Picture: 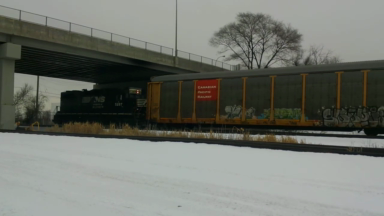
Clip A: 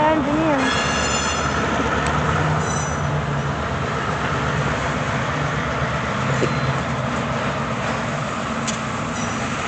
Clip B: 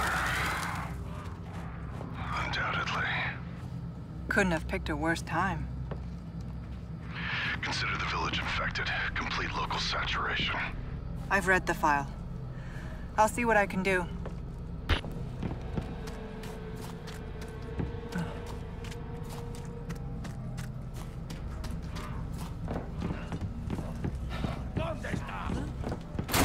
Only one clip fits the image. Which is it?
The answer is A